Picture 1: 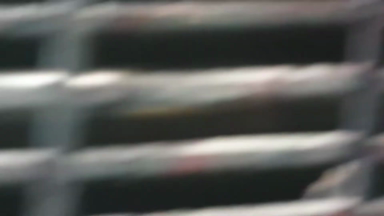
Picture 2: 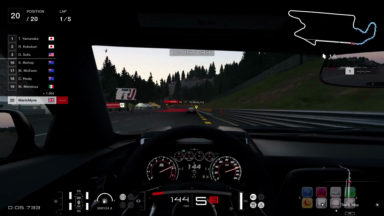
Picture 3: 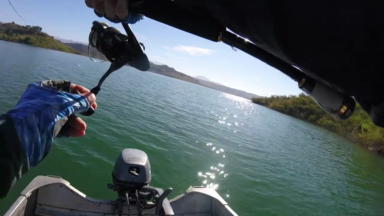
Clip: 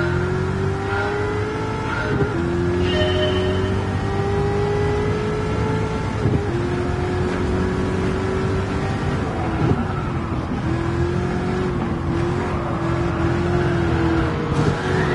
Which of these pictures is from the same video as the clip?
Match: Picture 2